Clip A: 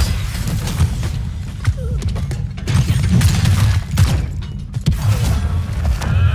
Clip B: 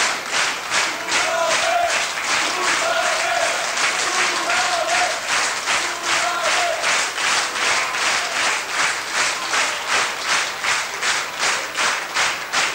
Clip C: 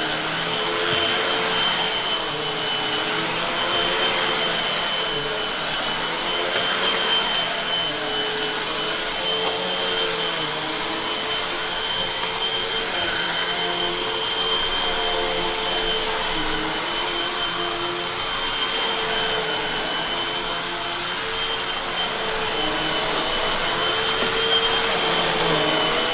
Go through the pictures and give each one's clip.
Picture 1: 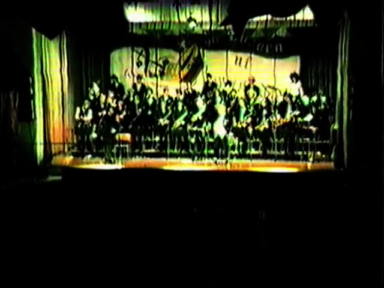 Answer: B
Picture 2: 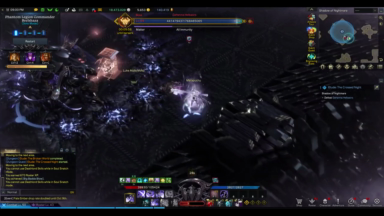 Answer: A